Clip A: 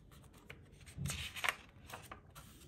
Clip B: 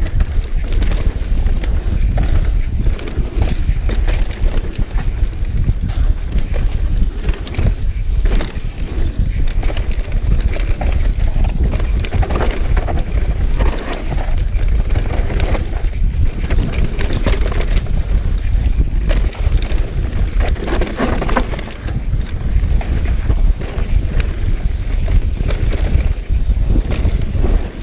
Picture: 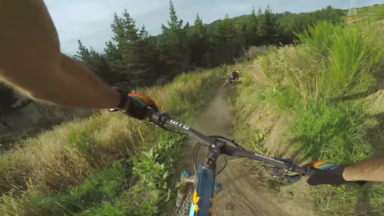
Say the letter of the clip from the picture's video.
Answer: B